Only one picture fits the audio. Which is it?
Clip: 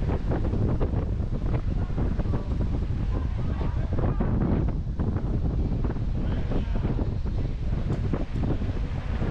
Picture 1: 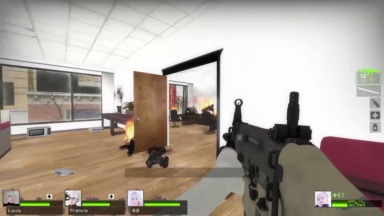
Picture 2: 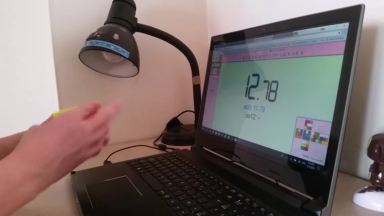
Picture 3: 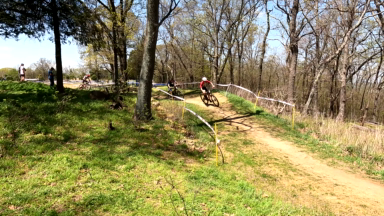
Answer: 3